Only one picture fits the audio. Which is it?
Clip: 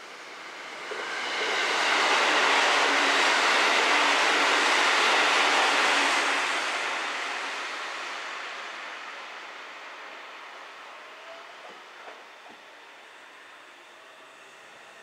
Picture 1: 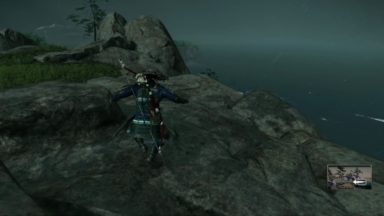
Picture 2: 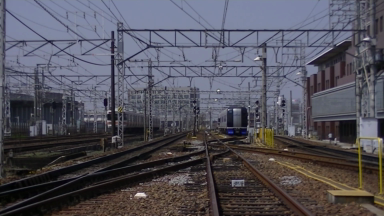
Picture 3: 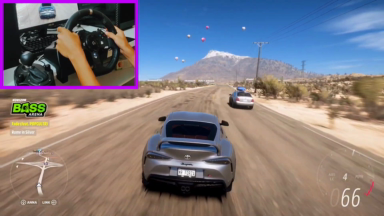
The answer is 2